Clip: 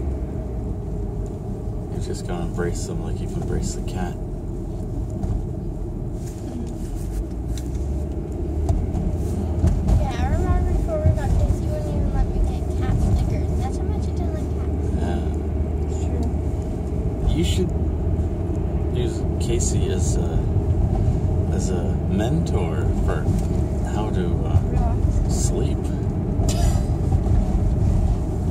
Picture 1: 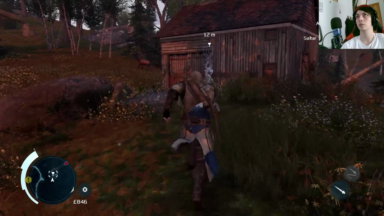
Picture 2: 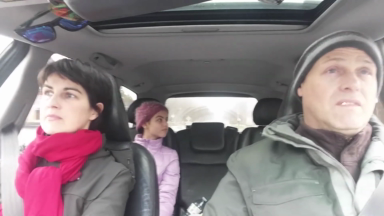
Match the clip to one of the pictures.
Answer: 2